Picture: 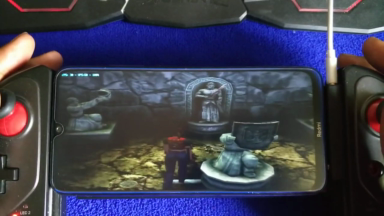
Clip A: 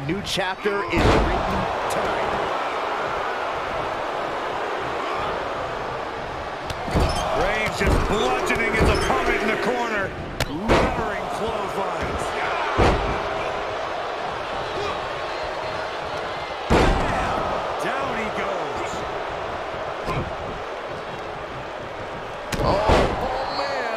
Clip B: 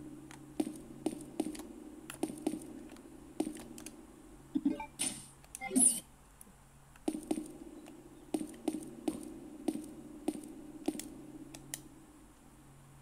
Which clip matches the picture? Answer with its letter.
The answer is B